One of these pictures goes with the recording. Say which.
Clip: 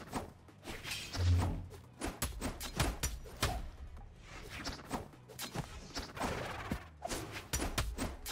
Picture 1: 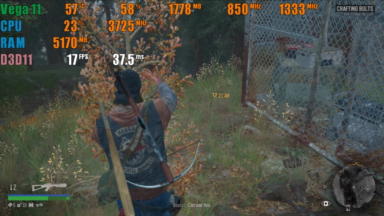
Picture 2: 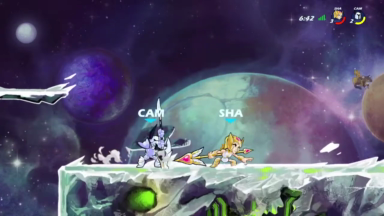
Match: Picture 2